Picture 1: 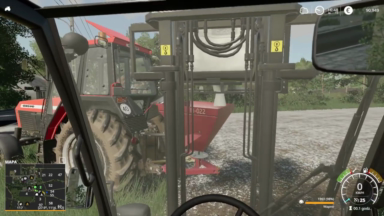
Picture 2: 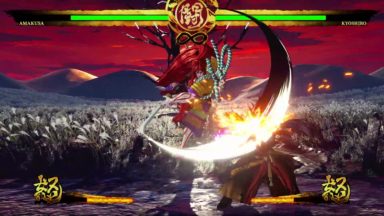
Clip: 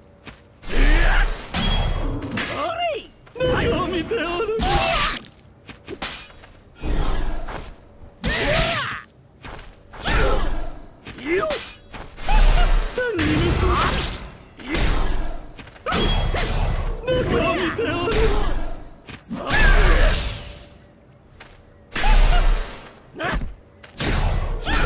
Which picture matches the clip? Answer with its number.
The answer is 2